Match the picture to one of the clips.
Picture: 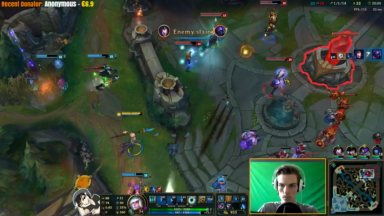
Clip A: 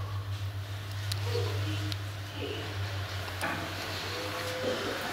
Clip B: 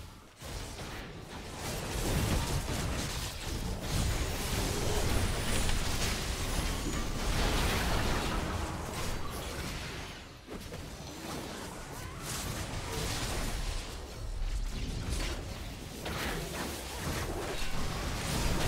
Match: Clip B